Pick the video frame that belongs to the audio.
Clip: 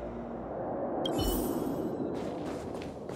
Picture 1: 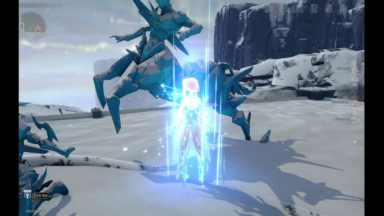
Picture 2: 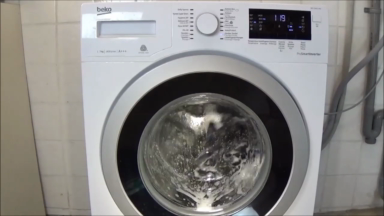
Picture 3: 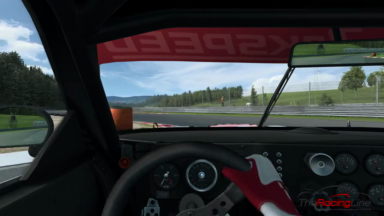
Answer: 1